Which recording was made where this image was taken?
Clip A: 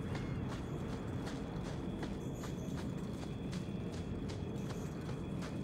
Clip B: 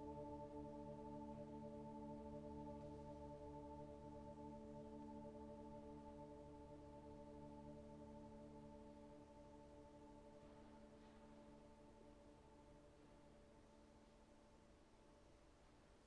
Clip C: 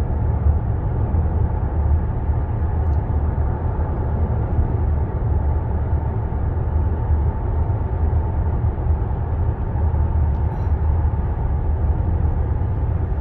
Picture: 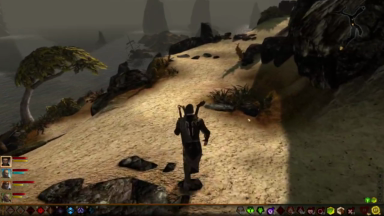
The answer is A